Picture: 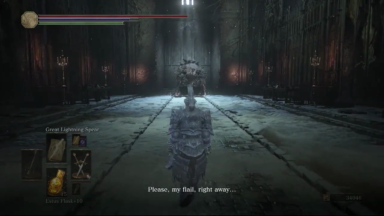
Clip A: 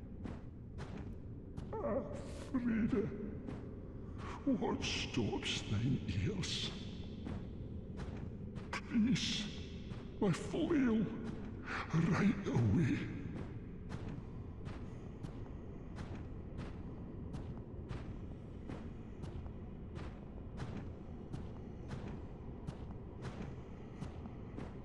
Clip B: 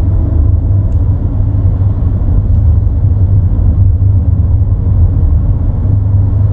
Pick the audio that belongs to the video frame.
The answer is A